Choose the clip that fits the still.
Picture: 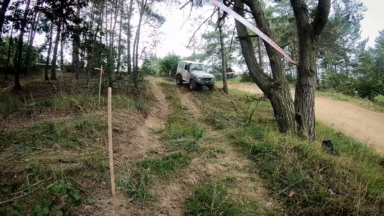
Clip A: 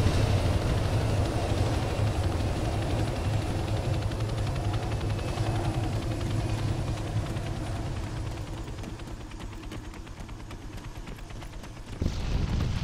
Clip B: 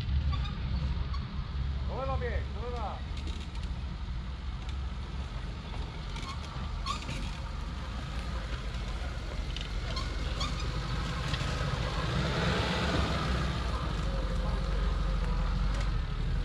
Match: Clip B